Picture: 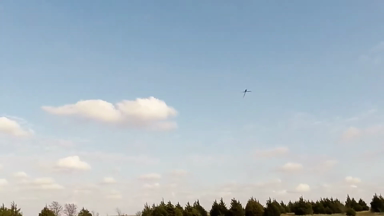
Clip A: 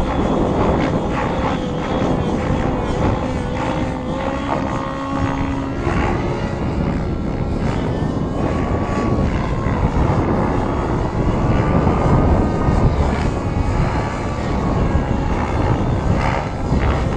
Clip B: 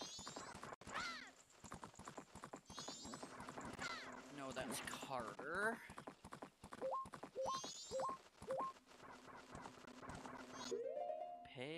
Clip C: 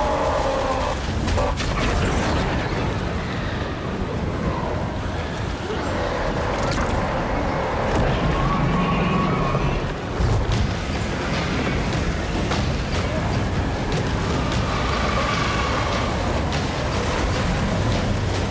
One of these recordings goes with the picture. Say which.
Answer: A